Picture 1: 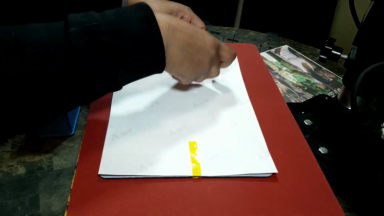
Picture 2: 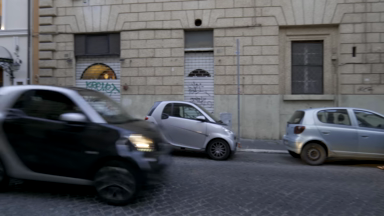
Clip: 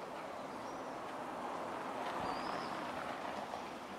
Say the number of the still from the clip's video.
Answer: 2